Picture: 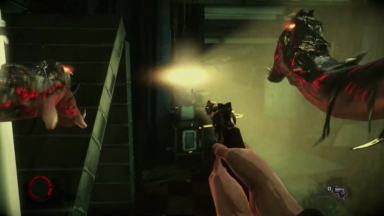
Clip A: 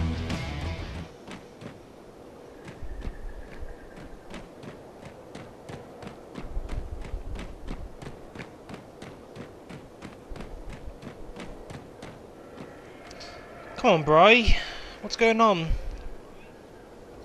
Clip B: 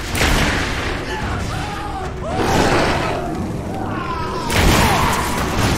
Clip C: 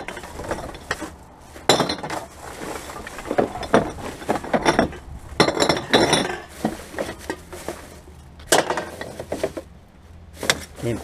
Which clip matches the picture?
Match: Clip B